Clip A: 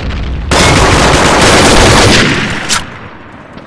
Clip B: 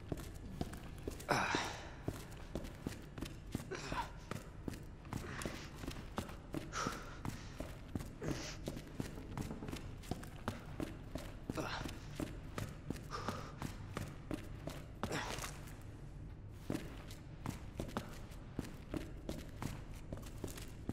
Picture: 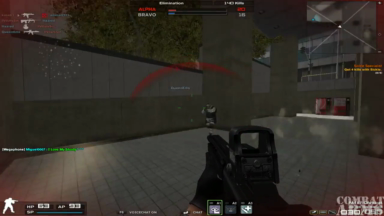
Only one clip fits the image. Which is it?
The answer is A